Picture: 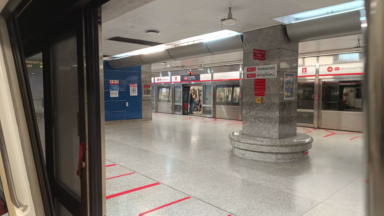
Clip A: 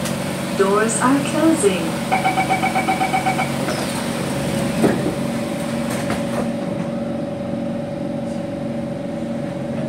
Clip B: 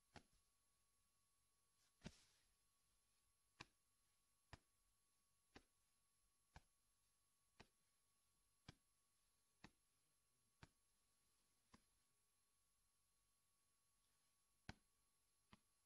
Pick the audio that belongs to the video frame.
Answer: A